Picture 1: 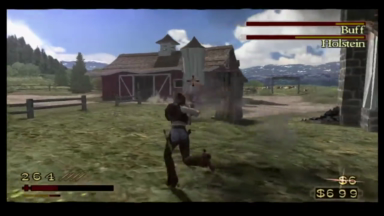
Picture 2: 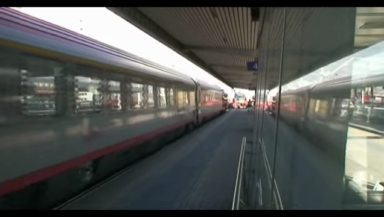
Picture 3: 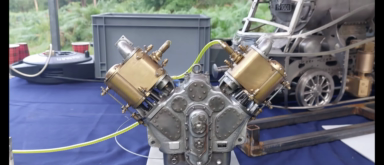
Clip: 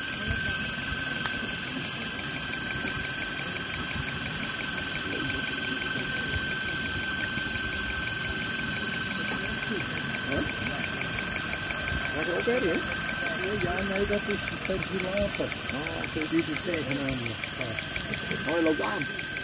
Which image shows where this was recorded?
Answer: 3